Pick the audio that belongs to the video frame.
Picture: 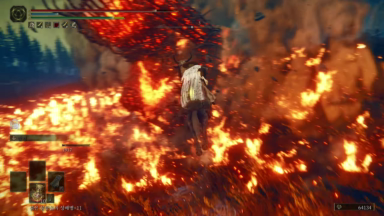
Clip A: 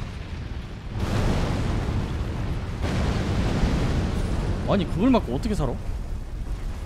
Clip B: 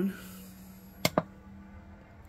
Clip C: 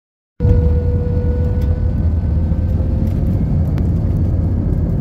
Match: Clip A